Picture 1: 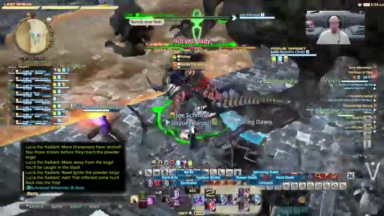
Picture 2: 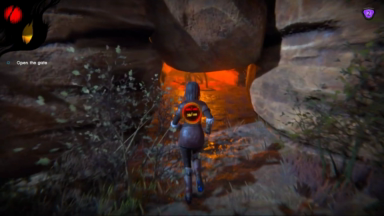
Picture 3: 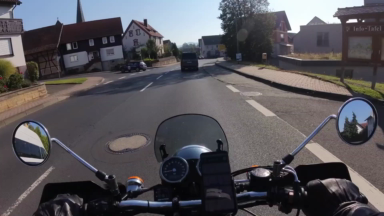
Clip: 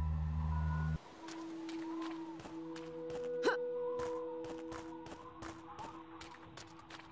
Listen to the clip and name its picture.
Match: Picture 2